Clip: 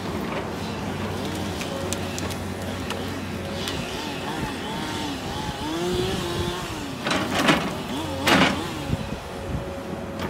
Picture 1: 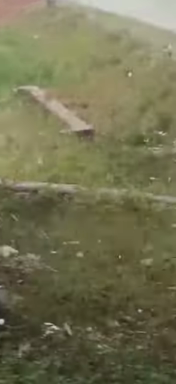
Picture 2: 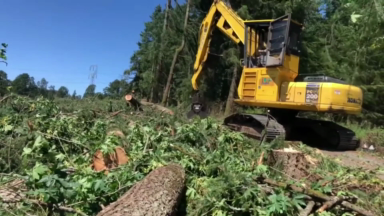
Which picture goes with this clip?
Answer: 2